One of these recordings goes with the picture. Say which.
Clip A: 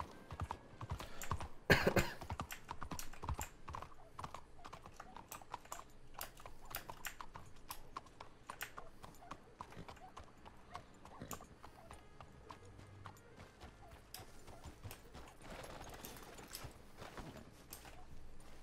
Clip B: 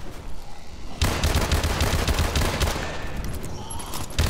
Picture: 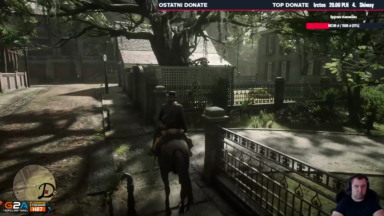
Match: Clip A